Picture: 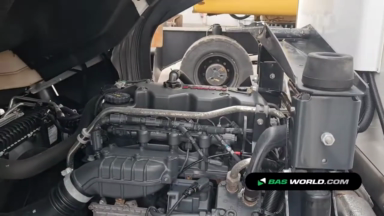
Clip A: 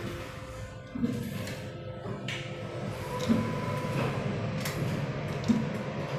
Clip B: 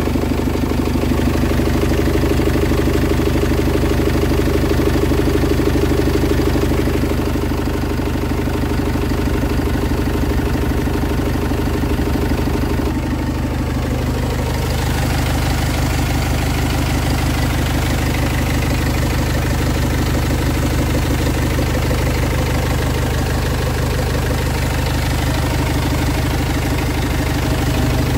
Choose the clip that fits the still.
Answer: B